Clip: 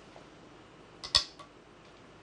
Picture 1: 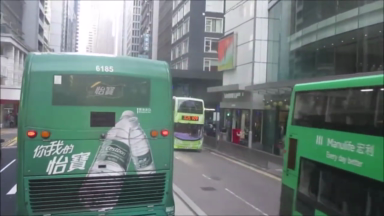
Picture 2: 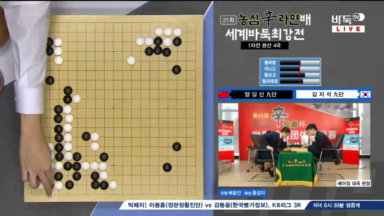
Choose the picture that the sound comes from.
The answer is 2